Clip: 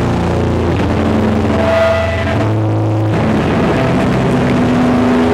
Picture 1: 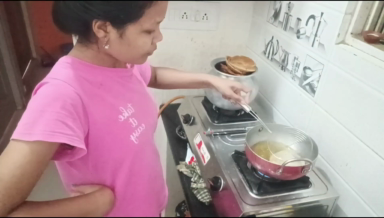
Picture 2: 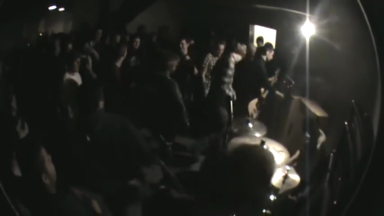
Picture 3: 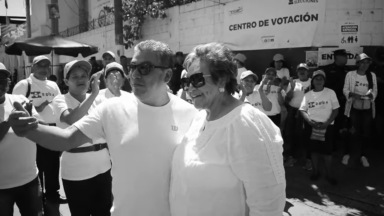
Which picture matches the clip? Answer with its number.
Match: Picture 2